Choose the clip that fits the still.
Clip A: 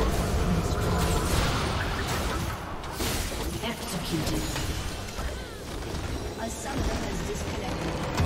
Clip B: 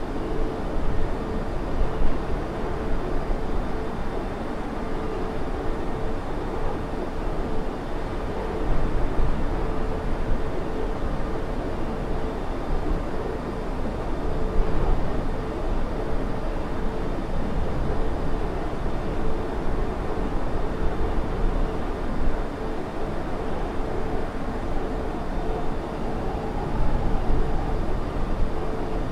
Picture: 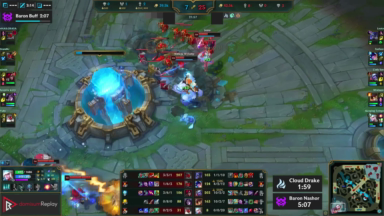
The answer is A